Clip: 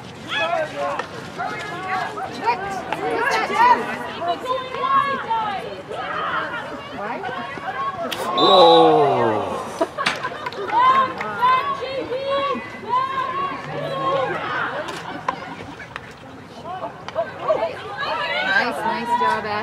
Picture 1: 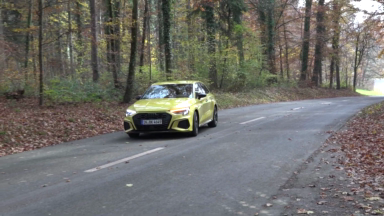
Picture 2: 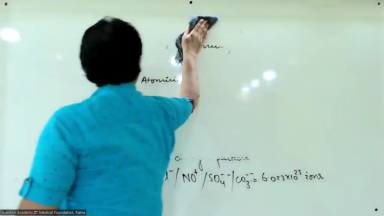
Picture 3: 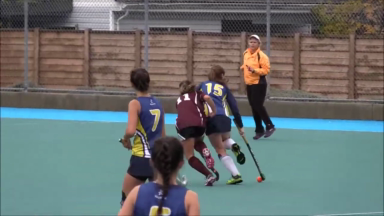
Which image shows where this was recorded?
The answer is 3